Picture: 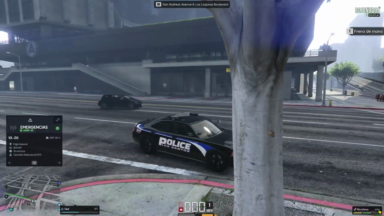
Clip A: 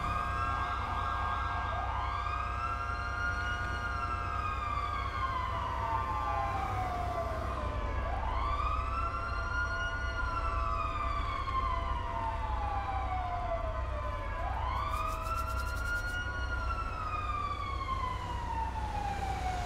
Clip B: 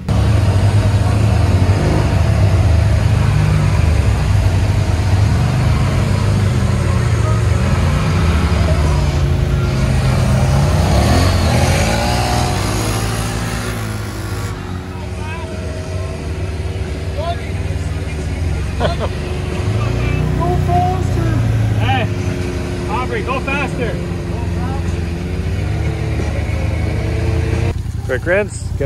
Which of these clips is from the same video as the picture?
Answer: A